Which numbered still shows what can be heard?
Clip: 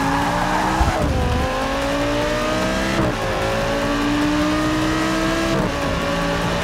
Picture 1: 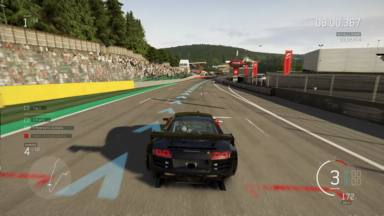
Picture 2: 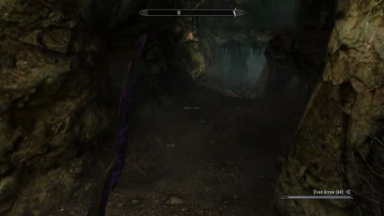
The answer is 1